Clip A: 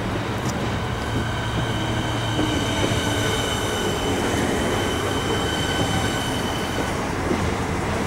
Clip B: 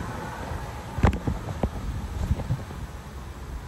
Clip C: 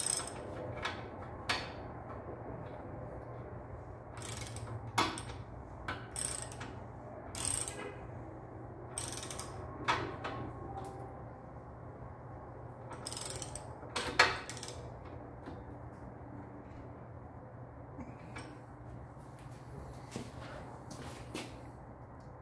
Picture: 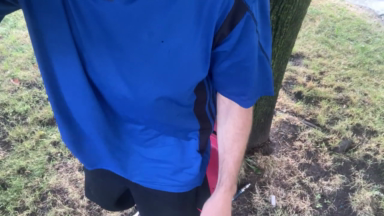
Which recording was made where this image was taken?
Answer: B